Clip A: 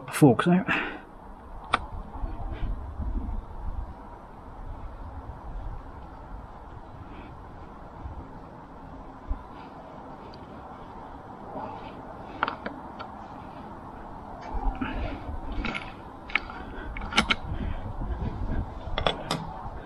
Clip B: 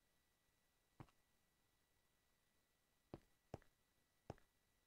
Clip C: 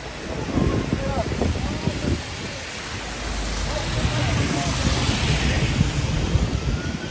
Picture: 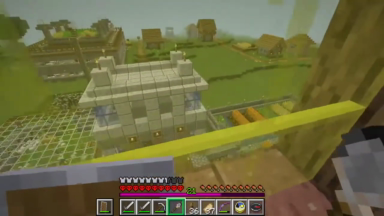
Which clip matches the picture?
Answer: B